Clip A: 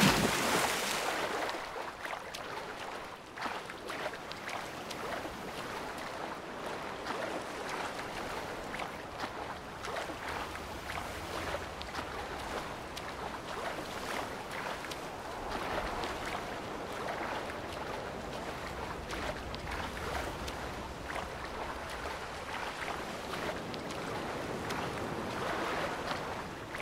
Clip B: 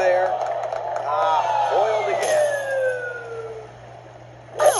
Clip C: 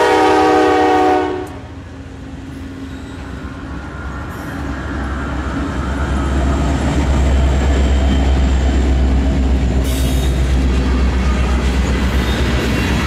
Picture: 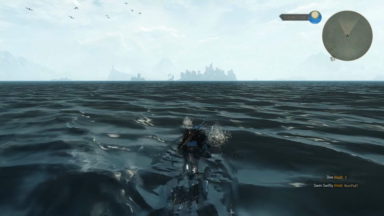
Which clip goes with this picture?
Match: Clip A